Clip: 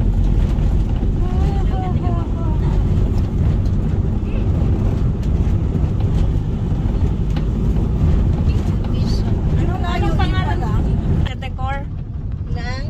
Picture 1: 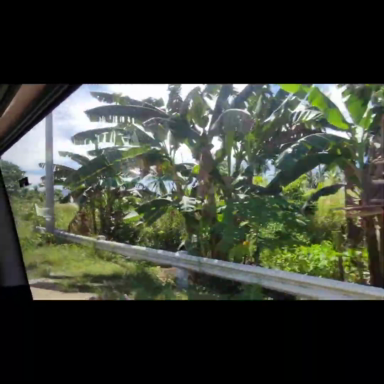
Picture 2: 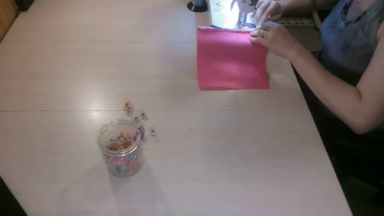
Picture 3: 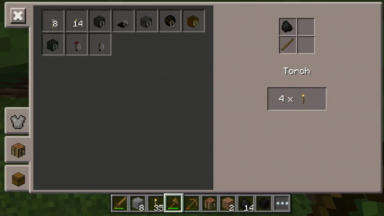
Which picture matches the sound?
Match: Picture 1